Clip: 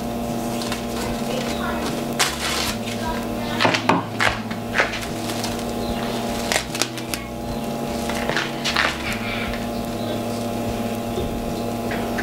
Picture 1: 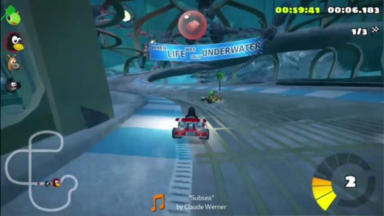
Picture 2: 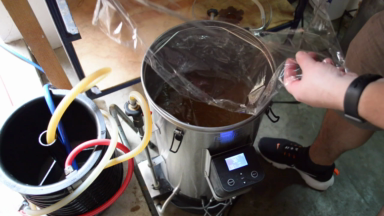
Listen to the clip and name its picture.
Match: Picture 2